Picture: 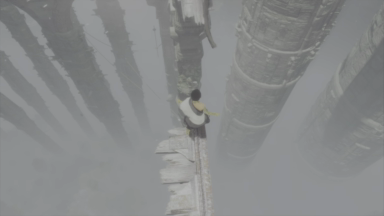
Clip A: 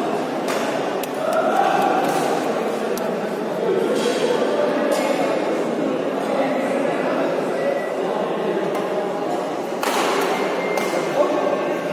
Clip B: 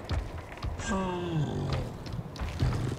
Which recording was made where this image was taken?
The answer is B